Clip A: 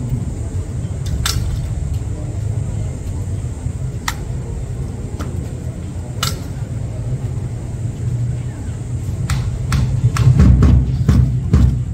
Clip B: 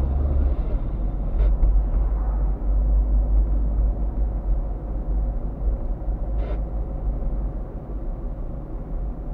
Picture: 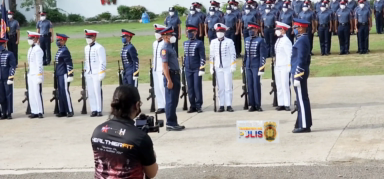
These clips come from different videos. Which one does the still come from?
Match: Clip A